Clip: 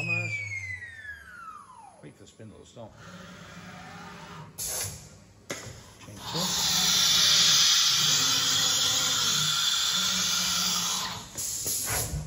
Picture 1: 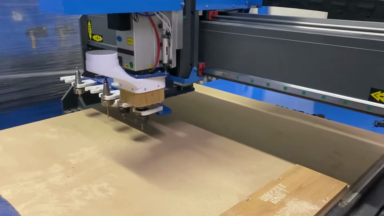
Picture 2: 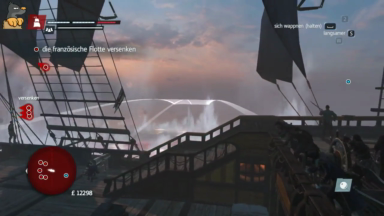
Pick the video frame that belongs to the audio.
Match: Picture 1